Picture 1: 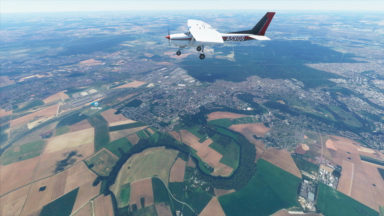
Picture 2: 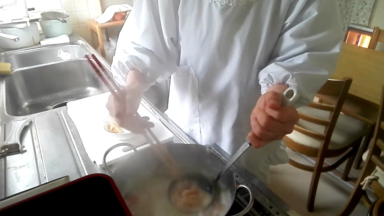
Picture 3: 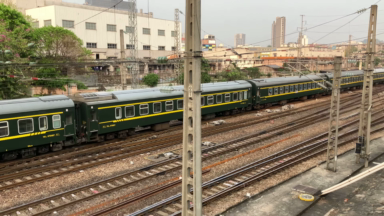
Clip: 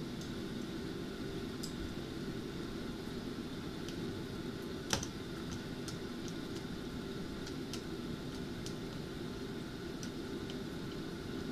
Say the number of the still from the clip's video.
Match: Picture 2